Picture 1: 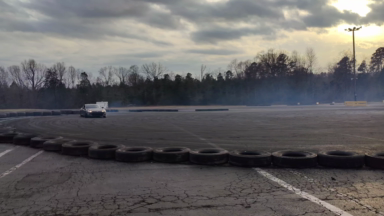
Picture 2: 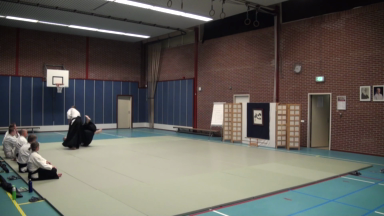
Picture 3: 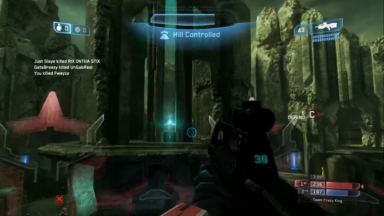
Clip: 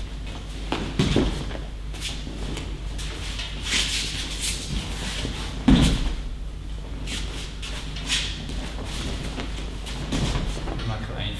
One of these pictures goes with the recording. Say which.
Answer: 2